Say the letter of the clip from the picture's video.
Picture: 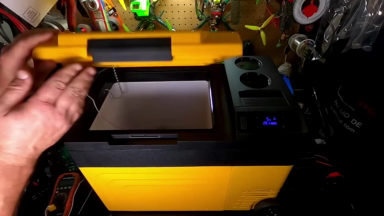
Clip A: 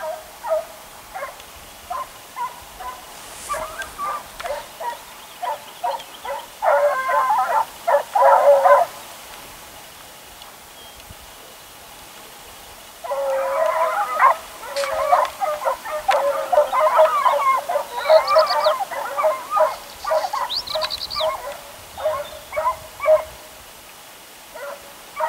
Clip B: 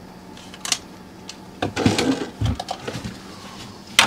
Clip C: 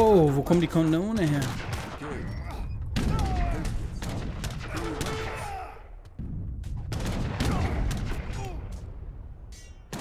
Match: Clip B